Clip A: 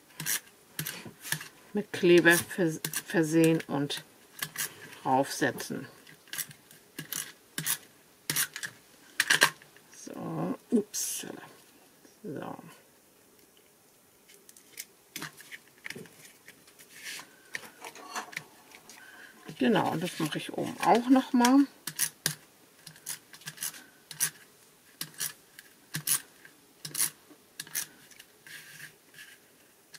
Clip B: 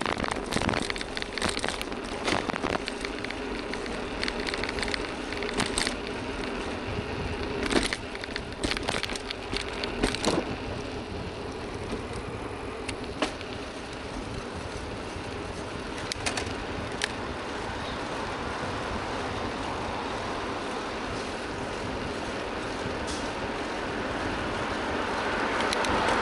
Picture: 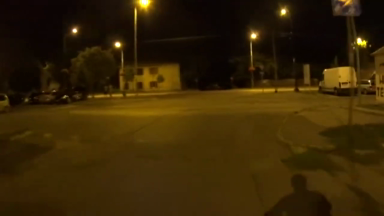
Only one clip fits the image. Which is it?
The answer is B